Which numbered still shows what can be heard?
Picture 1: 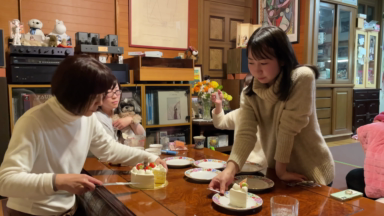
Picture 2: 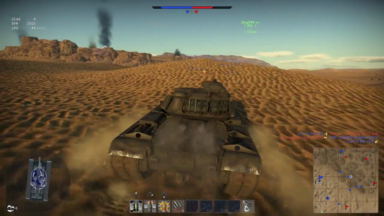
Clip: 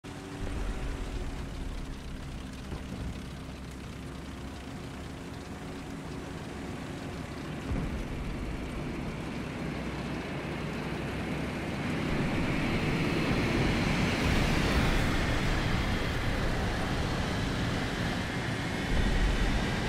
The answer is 2